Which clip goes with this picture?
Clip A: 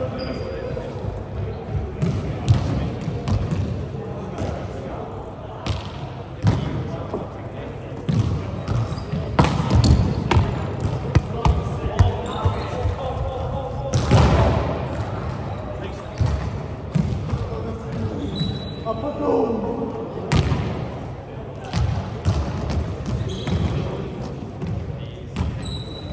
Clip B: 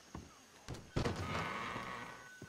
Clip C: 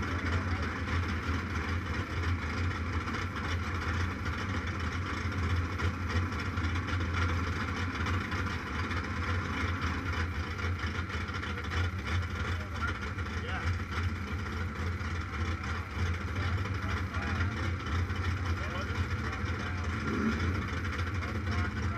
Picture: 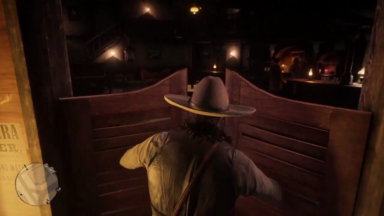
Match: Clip B